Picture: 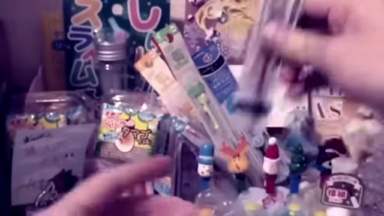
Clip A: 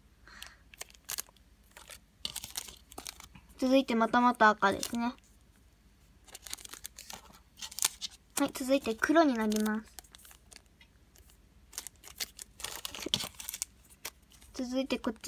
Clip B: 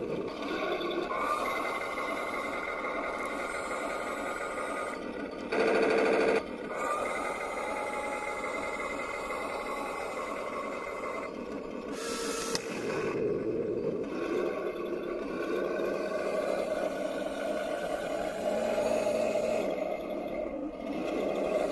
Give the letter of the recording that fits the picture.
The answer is A